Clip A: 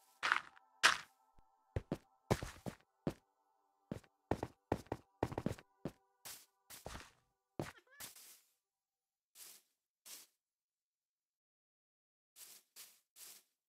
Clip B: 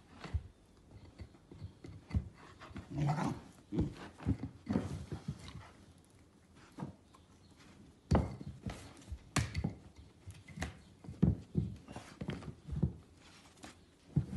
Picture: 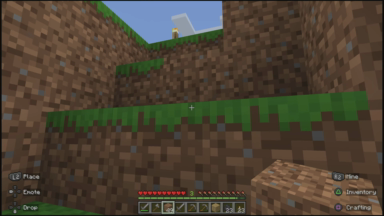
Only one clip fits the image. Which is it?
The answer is A